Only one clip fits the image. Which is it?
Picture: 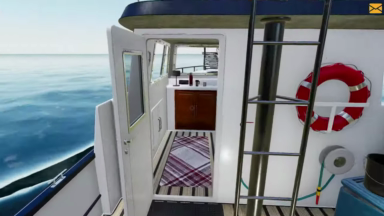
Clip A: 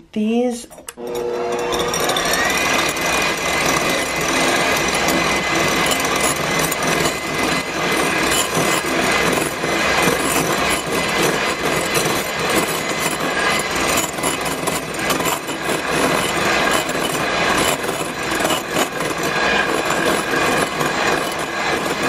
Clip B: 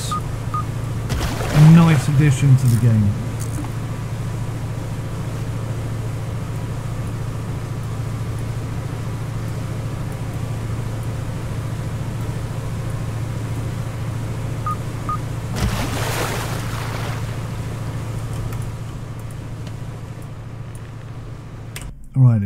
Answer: B